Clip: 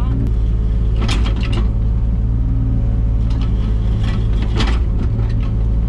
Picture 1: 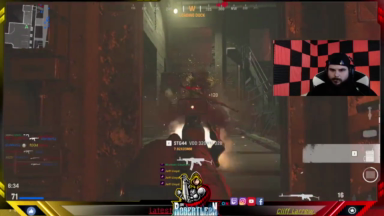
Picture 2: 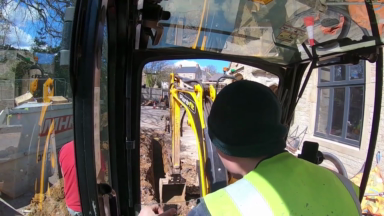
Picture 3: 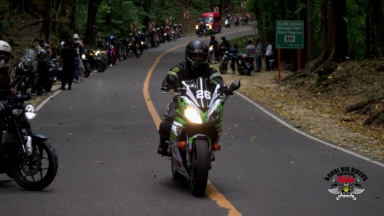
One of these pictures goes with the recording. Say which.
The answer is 2